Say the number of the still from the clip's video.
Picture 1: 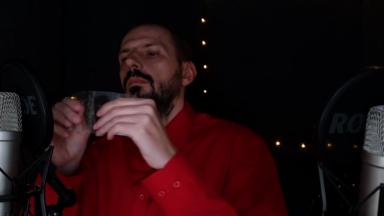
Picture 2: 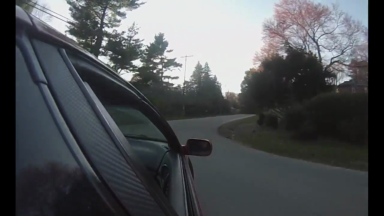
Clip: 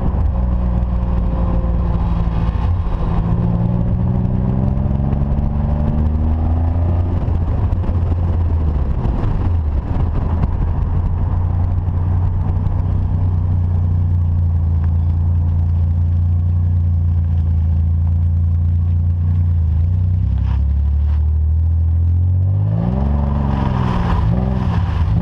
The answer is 2